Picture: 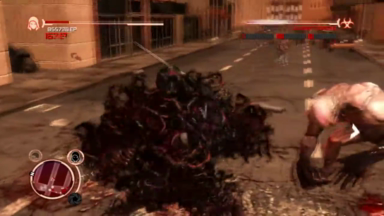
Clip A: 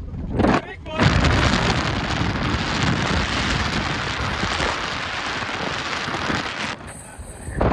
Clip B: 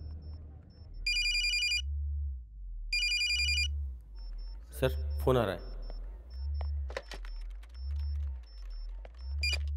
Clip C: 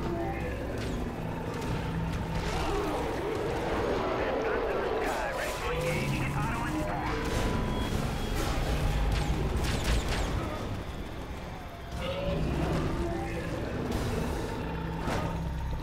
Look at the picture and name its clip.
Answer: C